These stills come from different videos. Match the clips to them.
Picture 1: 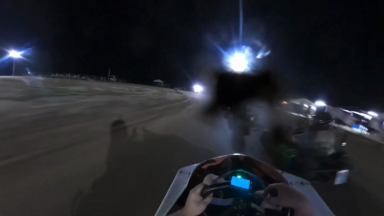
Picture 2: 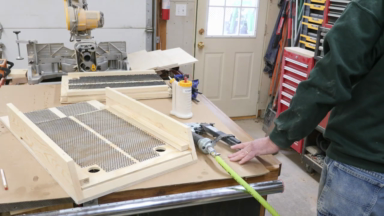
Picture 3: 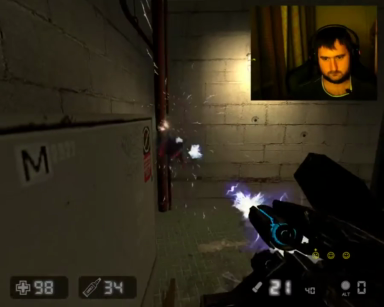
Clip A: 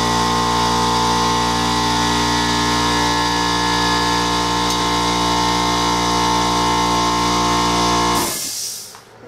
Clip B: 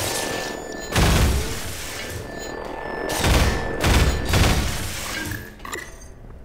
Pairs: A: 2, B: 3